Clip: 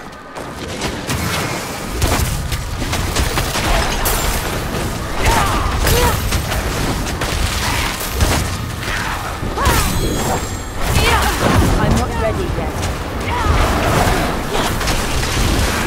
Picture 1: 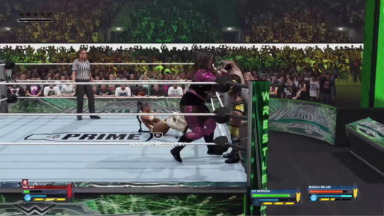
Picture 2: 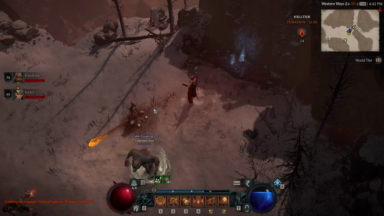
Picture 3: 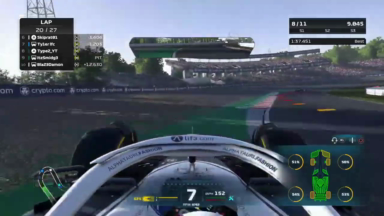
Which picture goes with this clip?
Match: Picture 2